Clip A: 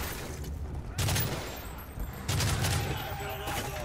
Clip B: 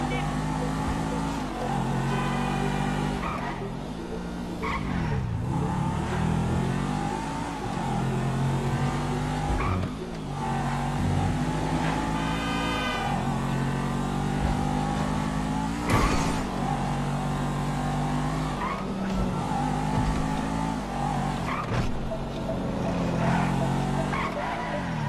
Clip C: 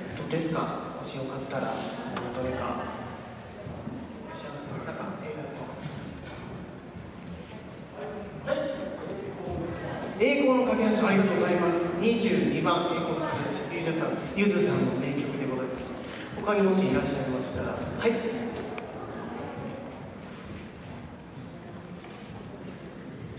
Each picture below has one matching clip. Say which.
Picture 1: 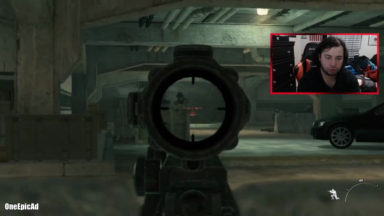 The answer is A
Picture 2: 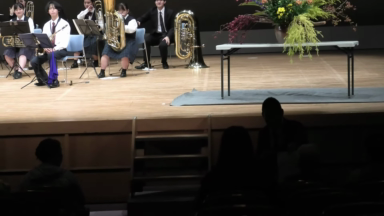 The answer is C